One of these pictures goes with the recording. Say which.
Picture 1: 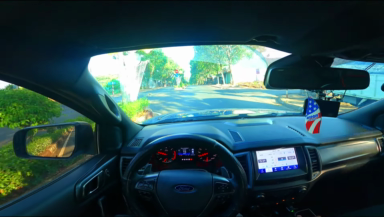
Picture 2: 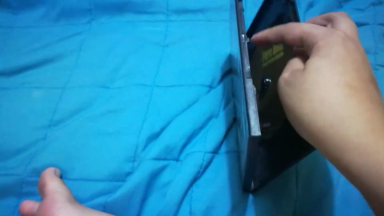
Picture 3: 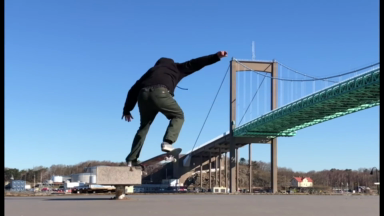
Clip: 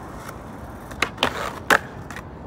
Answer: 3